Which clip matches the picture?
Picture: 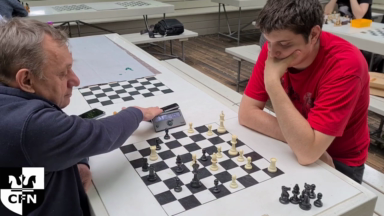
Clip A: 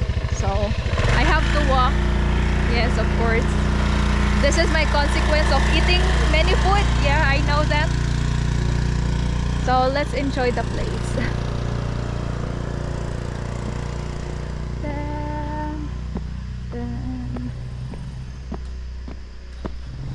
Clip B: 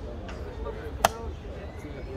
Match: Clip B